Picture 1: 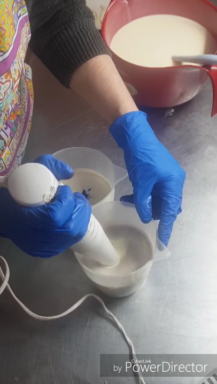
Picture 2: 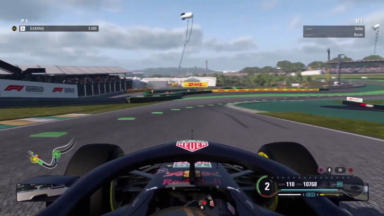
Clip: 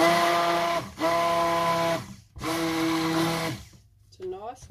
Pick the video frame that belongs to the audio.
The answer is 1